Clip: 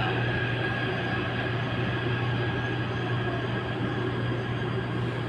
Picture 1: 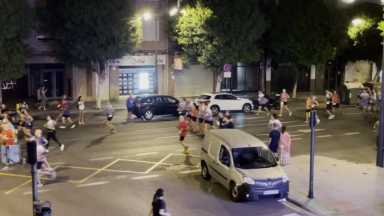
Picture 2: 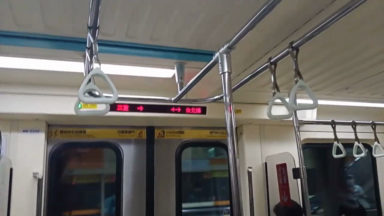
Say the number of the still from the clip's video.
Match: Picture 2